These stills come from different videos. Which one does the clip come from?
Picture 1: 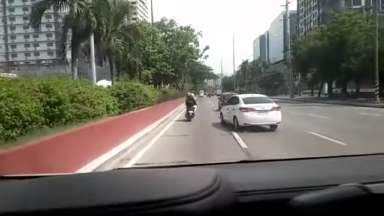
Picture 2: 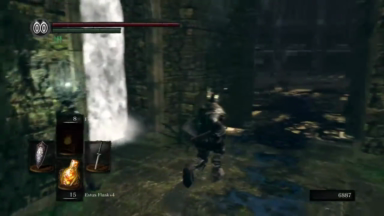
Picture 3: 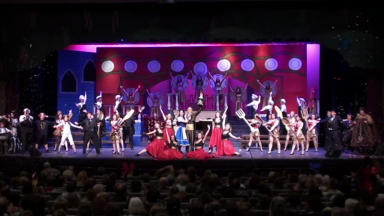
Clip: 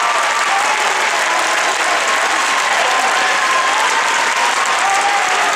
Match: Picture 3